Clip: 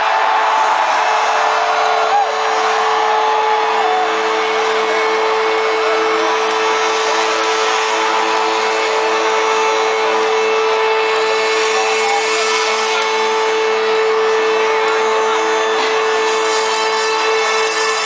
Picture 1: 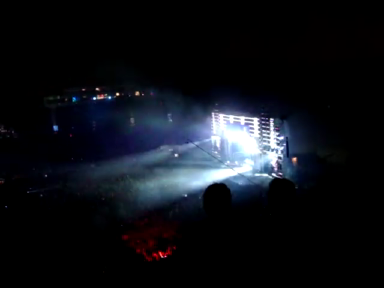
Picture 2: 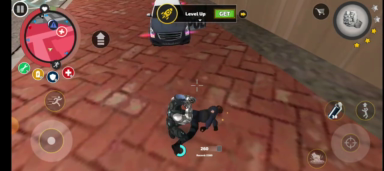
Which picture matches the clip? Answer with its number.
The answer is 1